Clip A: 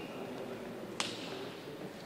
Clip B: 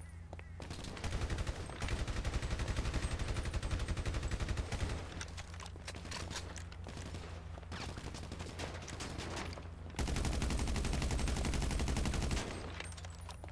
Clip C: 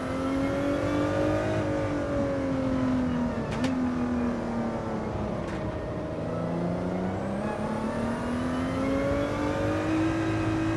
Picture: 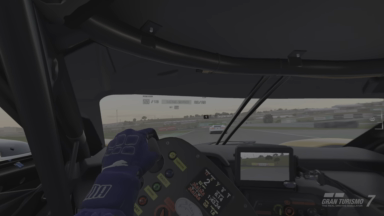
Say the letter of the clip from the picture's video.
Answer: C